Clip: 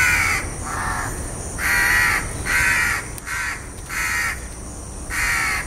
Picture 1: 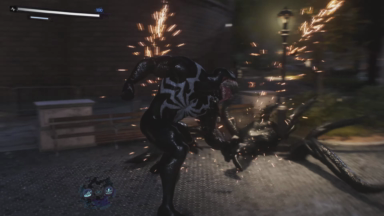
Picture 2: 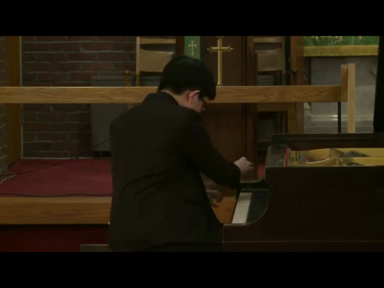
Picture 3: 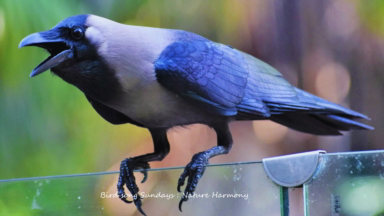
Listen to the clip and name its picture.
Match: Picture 3